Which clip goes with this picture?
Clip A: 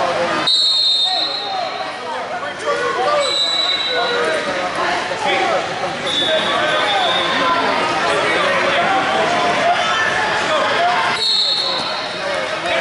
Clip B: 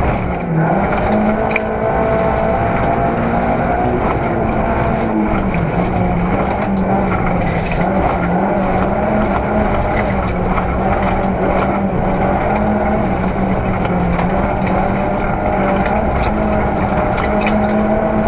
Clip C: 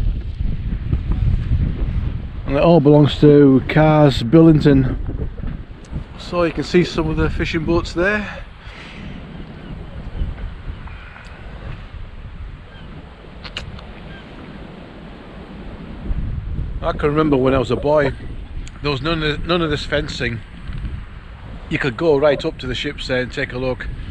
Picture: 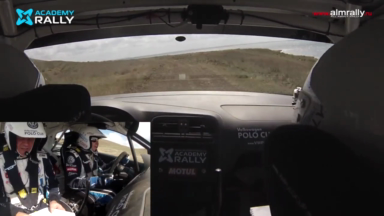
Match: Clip B